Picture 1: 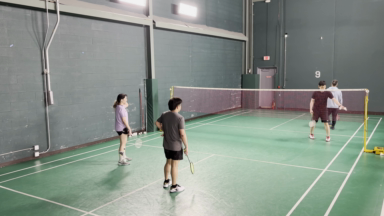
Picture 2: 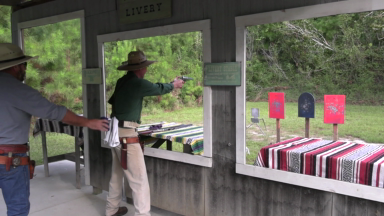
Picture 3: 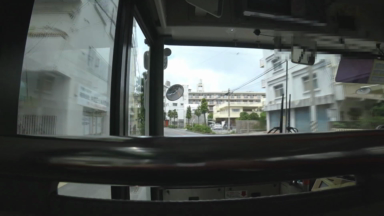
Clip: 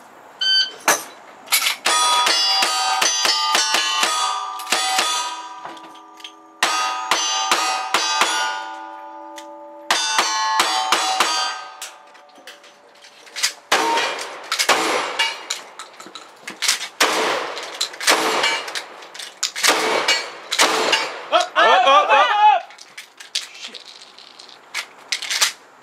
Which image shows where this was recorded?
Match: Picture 2